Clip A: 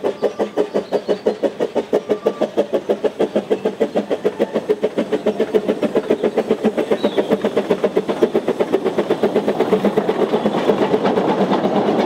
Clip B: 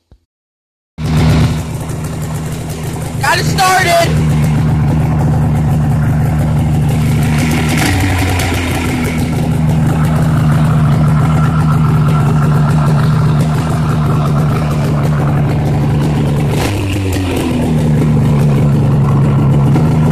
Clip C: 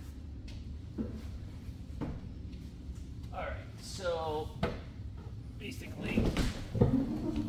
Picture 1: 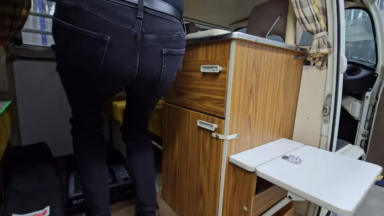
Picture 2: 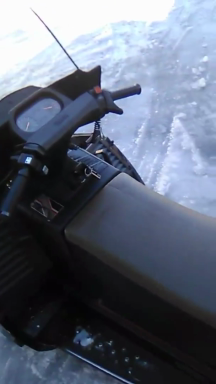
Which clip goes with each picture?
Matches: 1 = C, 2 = B